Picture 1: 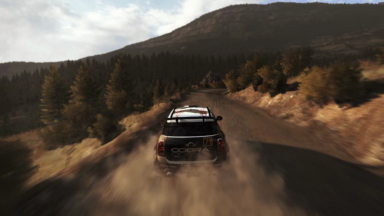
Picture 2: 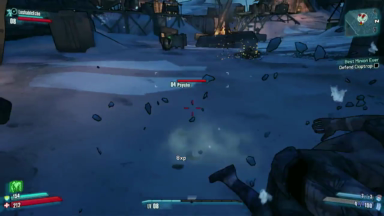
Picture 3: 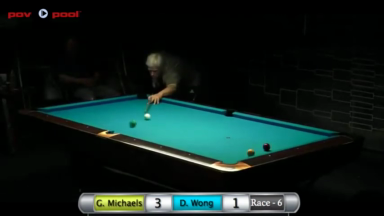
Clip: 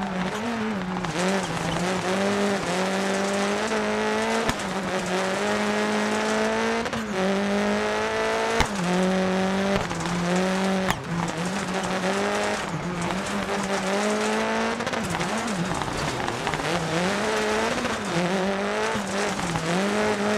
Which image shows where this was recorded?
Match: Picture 1